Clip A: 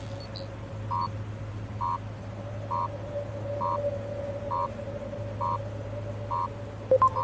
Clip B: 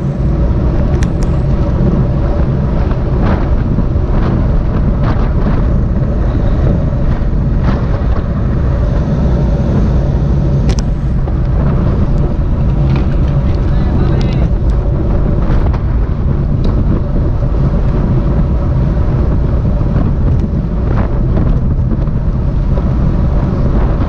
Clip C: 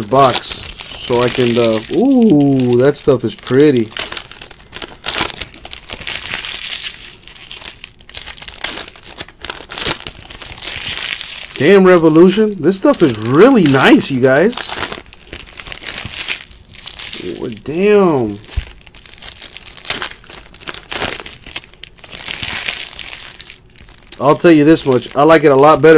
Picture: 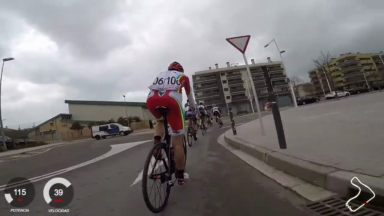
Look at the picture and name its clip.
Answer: B